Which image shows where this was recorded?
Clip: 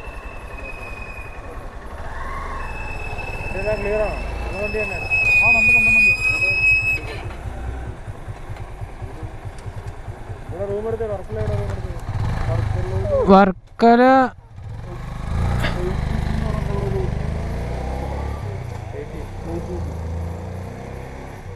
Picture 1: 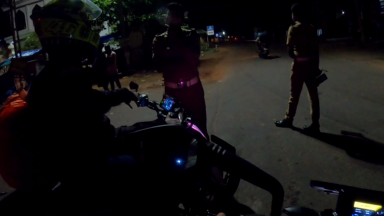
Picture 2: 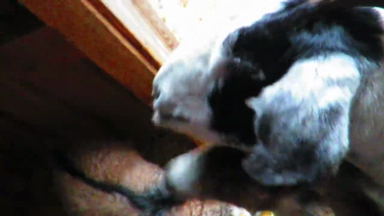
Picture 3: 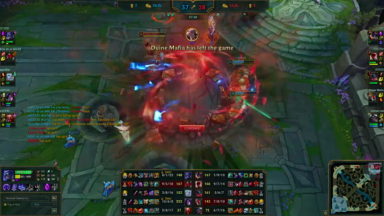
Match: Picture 1